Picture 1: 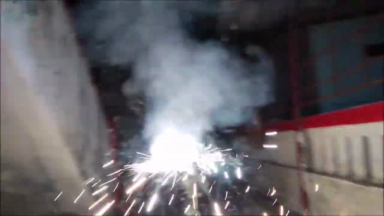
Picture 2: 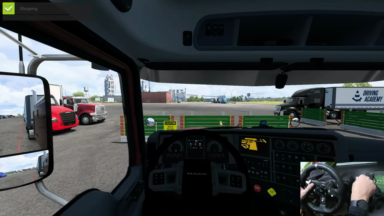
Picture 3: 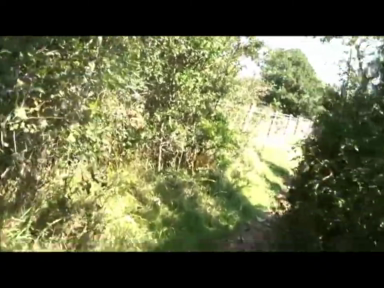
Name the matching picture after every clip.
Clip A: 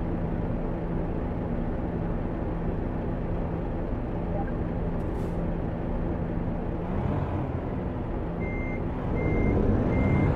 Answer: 2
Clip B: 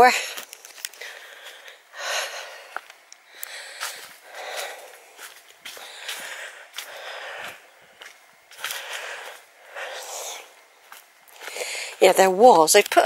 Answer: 3